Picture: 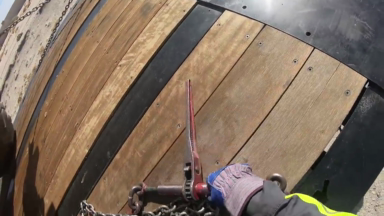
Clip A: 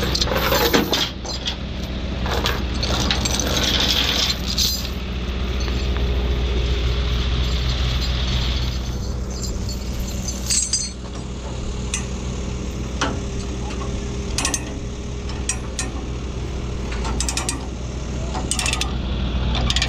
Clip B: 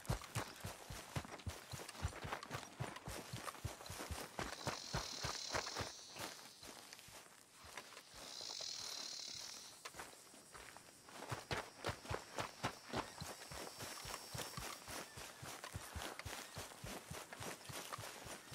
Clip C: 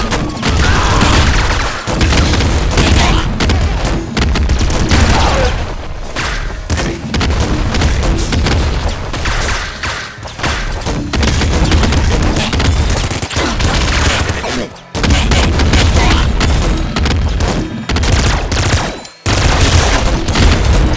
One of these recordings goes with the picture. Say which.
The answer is A